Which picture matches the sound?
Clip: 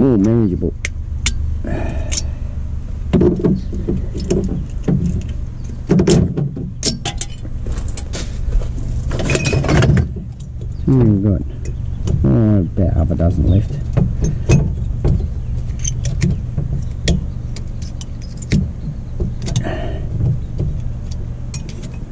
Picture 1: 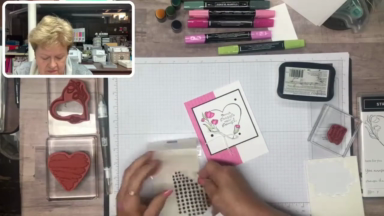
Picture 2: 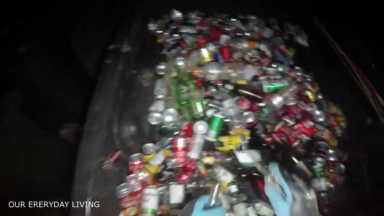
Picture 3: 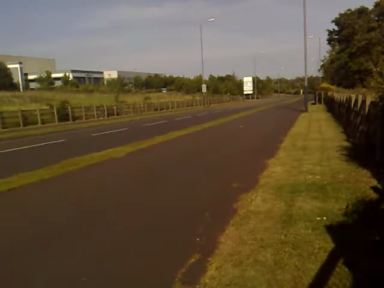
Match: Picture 2